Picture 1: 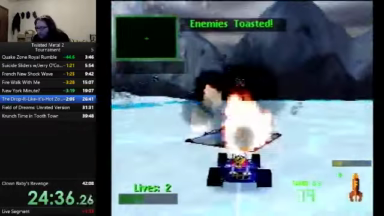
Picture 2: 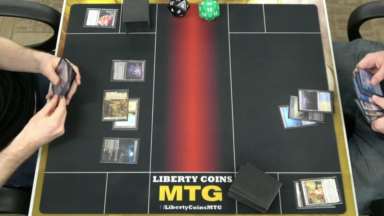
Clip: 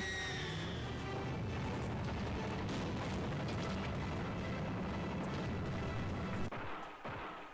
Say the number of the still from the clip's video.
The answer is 1